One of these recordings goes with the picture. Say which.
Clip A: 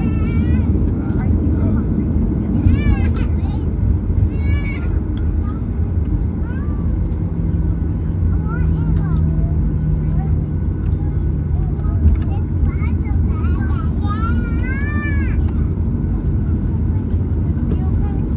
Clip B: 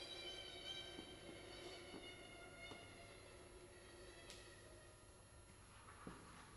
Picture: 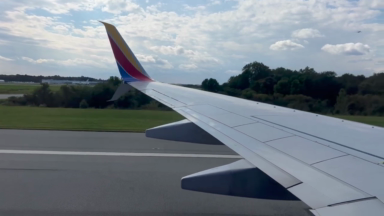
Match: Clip A